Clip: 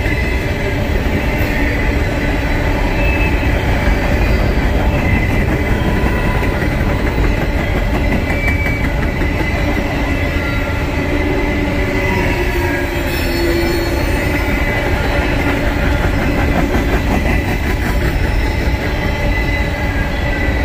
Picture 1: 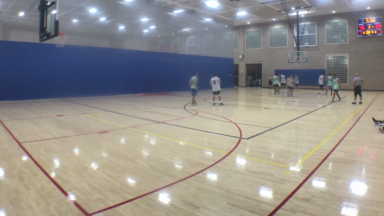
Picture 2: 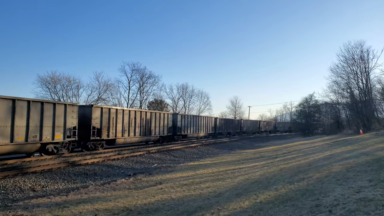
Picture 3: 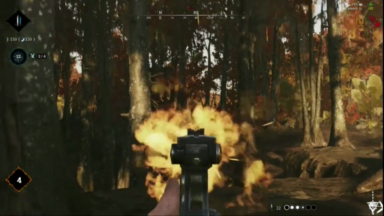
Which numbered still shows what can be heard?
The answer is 2